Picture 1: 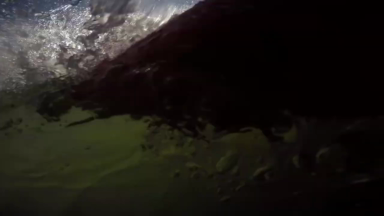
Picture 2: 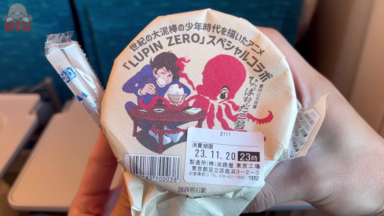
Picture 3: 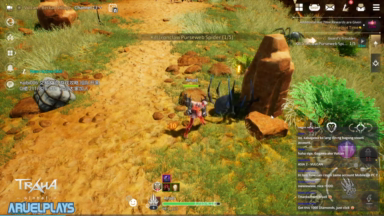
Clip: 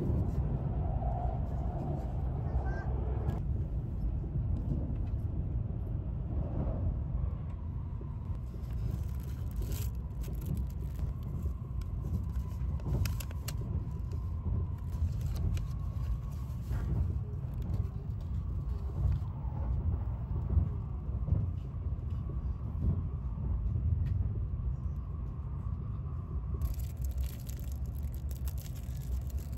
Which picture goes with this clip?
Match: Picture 2